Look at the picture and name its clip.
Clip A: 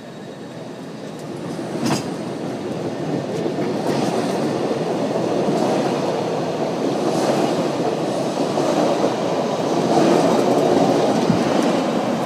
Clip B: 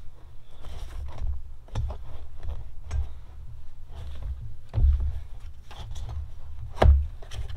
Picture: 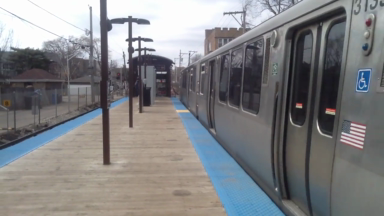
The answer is A